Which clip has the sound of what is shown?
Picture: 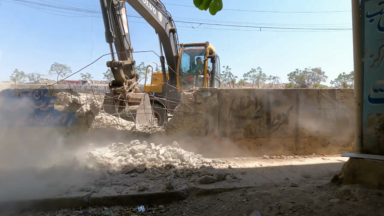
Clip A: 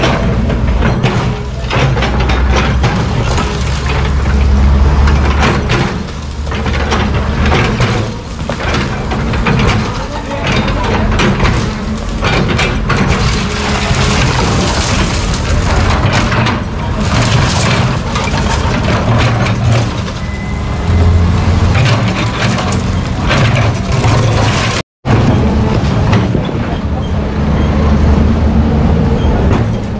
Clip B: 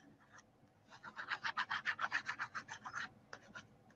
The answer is A